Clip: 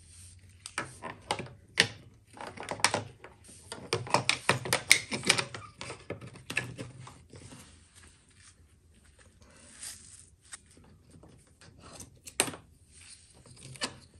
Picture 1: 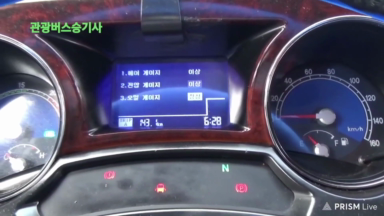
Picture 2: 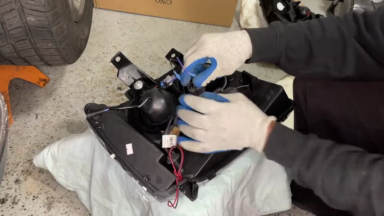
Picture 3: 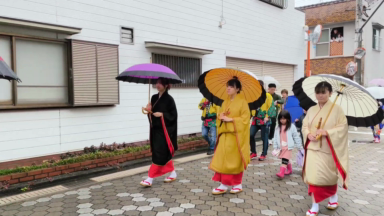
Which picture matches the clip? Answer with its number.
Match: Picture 2